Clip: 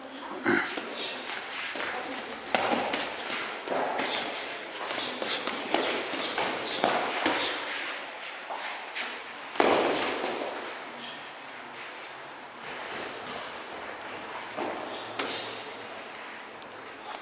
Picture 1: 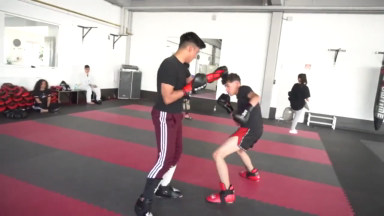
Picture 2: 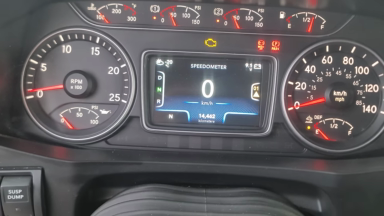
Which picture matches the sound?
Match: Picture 1